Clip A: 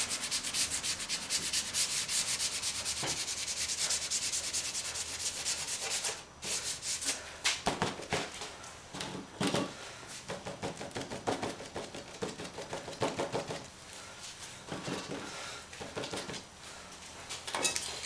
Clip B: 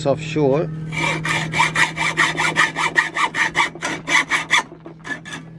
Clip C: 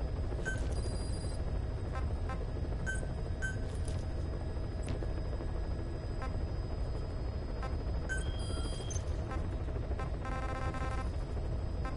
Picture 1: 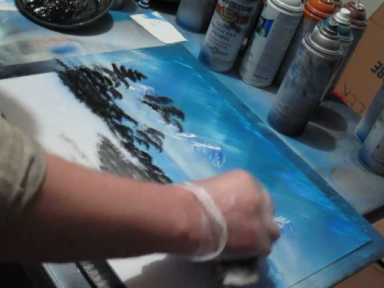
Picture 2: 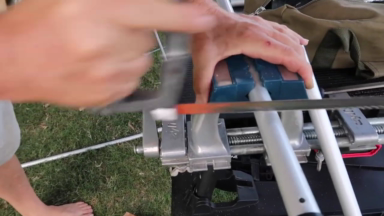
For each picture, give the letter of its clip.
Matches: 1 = A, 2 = B